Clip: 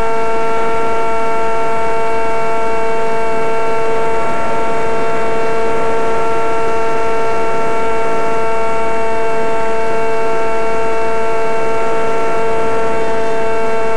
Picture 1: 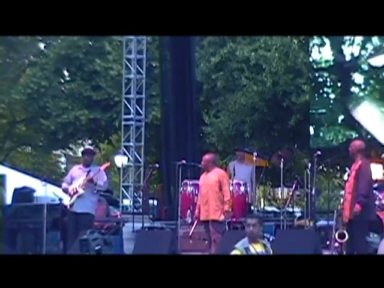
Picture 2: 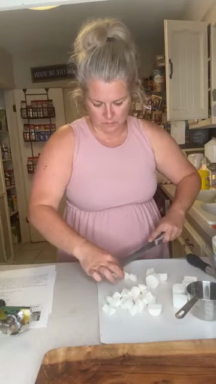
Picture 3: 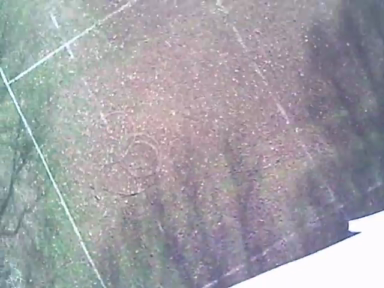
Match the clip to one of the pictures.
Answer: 3